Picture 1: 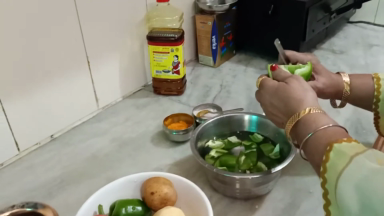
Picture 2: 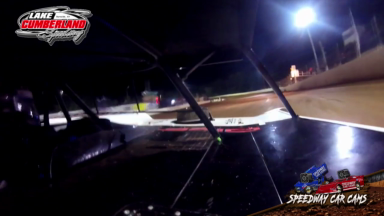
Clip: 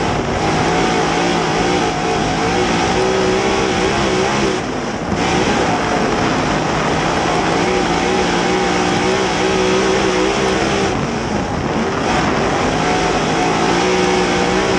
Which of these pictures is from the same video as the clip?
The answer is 2